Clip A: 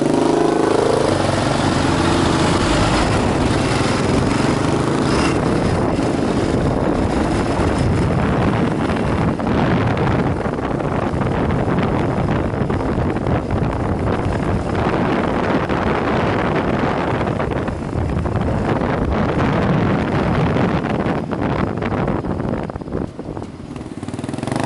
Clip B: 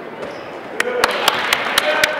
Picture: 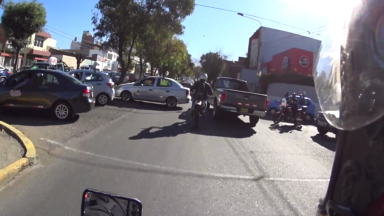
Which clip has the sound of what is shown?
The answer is A